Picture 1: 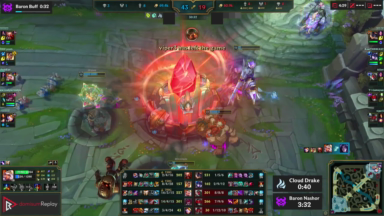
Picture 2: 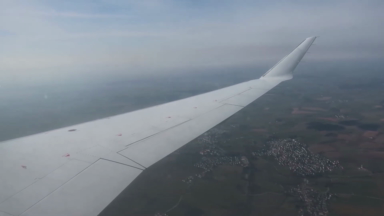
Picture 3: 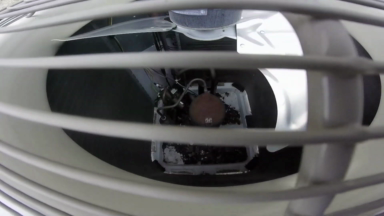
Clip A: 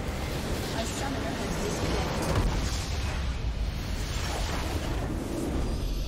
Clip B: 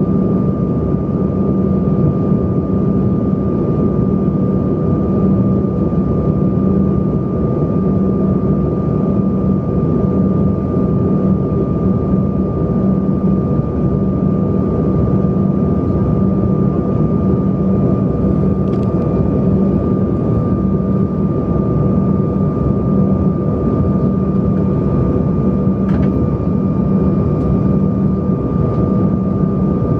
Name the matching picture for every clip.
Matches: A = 1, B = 2